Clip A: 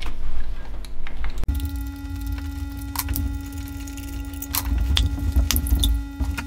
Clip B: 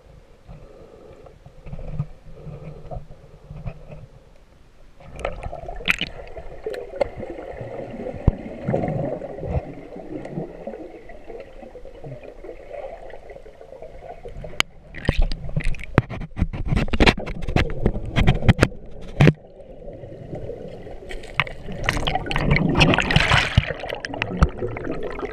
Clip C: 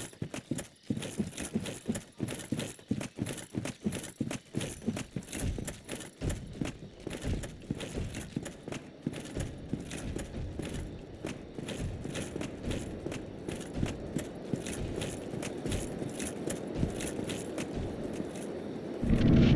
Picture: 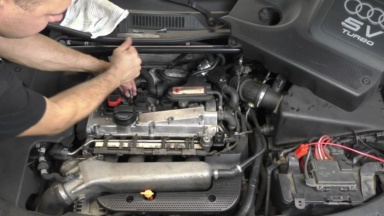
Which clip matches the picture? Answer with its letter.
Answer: A